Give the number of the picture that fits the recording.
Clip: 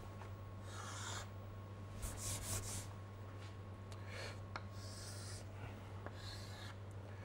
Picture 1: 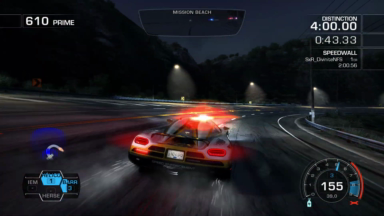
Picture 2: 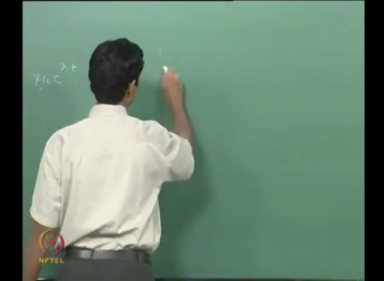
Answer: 2